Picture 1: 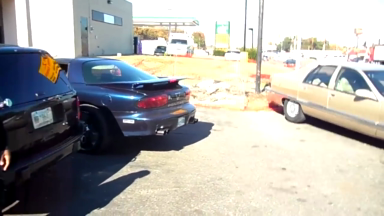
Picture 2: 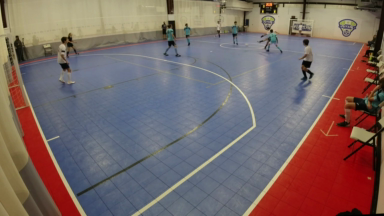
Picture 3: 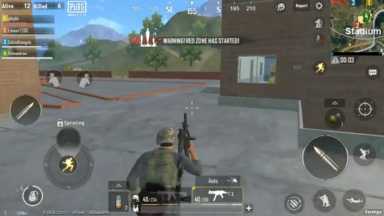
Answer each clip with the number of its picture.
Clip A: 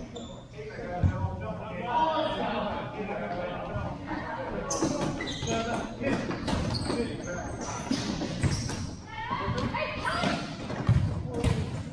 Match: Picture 2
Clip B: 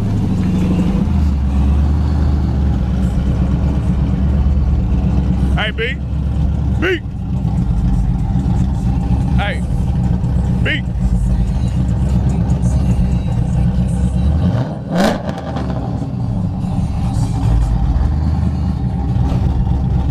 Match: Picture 1